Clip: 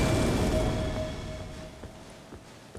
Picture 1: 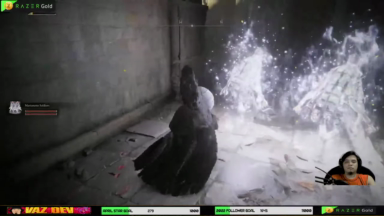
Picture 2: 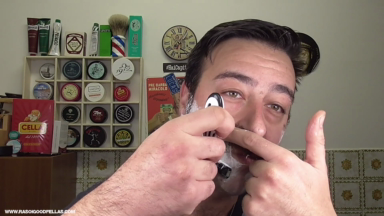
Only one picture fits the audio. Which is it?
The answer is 1